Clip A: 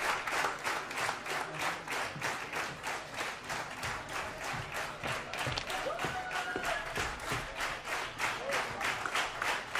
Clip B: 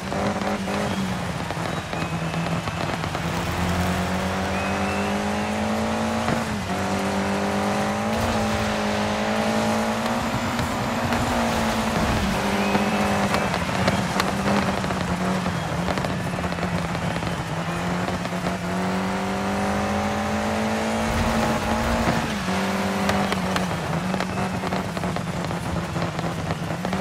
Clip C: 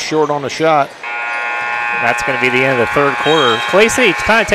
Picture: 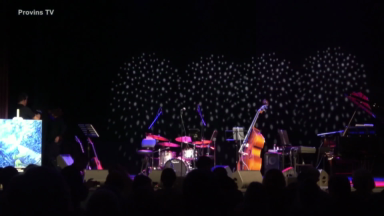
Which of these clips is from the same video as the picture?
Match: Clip A